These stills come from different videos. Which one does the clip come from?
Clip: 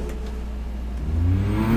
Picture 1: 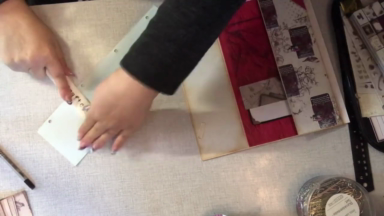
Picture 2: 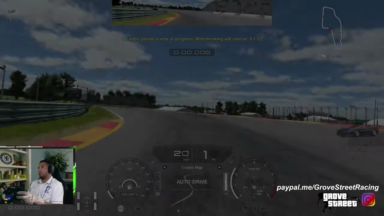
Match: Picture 2